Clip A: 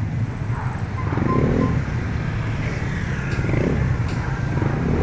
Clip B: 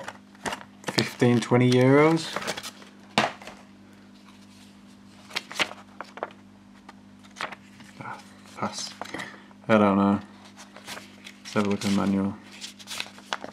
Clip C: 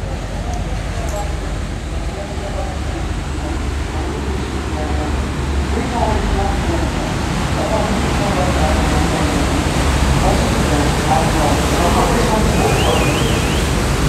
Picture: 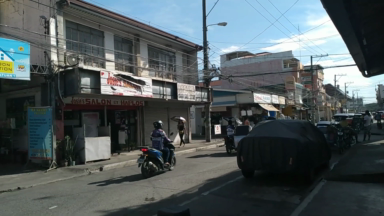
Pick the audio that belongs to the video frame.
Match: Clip A